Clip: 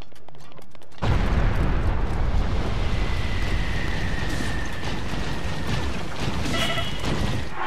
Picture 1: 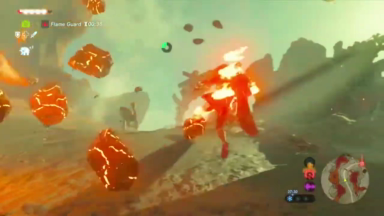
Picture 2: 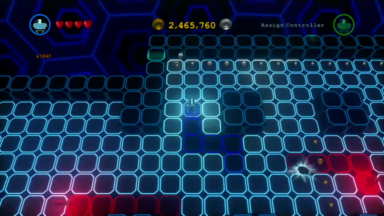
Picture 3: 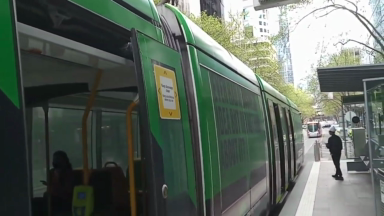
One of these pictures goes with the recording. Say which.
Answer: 1